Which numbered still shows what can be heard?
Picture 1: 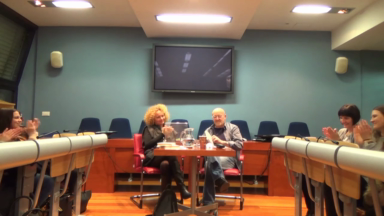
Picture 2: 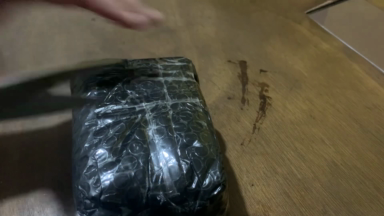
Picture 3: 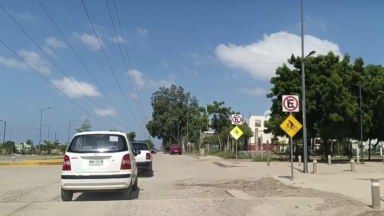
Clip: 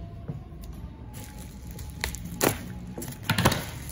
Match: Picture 2